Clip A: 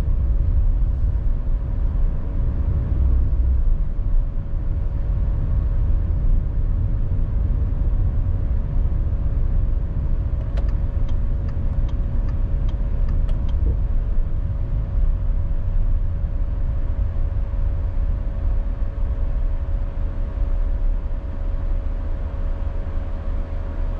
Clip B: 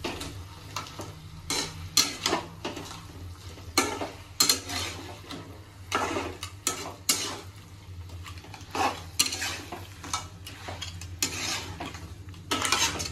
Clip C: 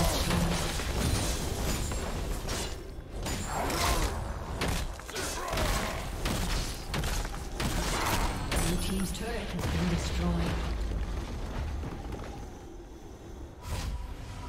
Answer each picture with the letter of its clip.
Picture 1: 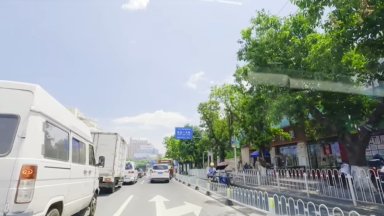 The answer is A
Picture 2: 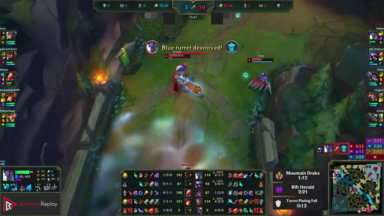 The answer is C